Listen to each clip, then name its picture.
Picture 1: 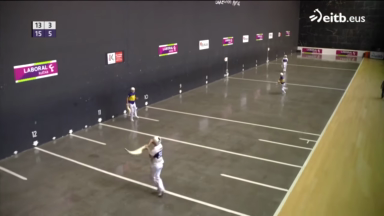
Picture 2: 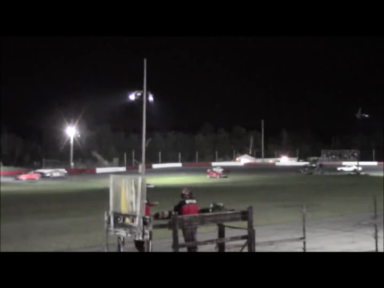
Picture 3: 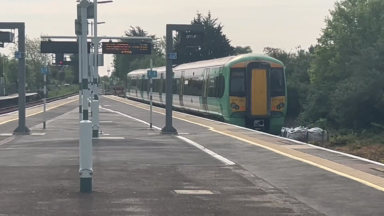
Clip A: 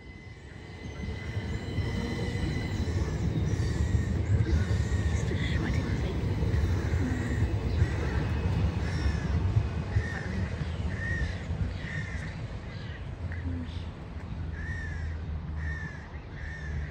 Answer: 3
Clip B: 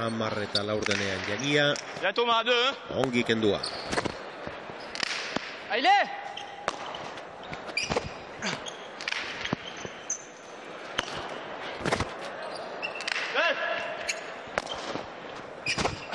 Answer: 1